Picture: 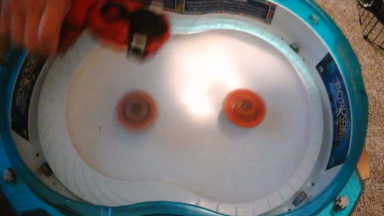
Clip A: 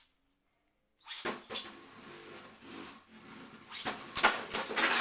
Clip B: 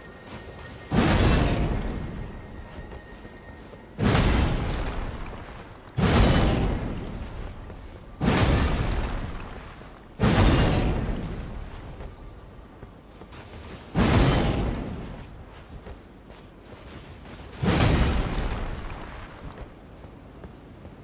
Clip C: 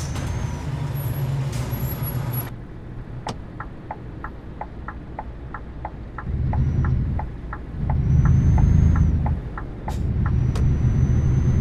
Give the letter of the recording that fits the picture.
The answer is A